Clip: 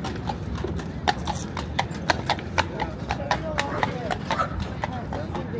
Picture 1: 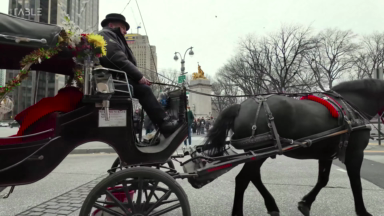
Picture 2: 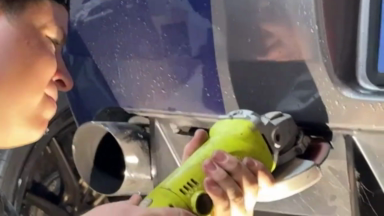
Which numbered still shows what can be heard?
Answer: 1